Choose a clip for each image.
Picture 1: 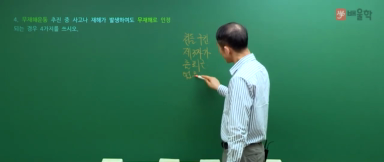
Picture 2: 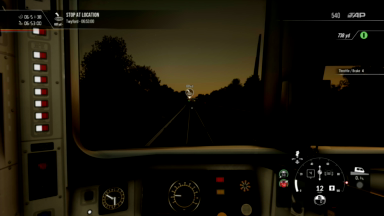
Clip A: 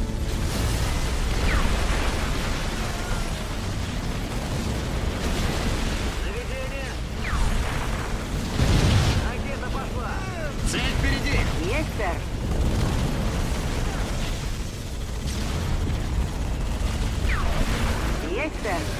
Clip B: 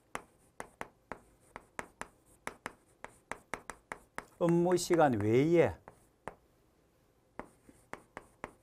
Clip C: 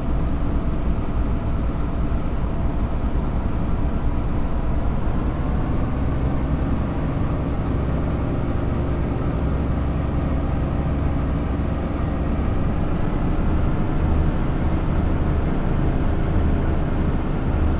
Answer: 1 B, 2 C